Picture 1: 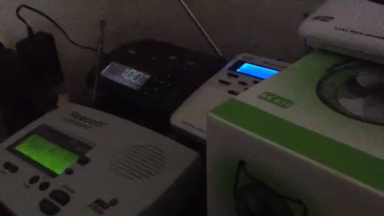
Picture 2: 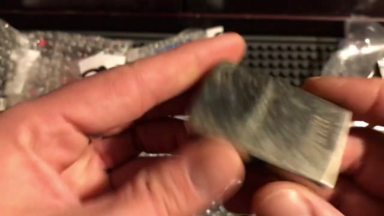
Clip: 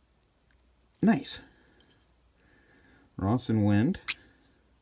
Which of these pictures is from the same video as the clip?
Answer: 2